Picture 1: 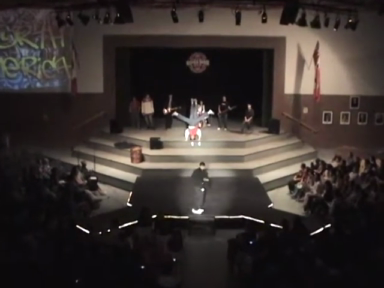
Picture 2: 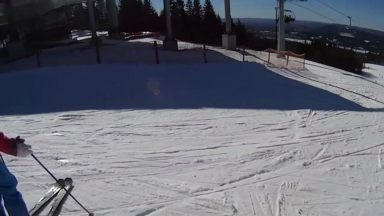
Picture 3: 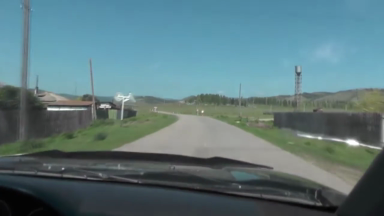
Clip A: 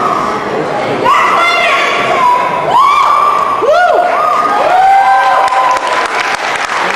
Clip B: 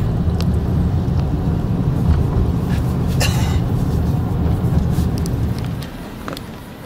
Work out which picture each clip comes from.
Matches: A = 1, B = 3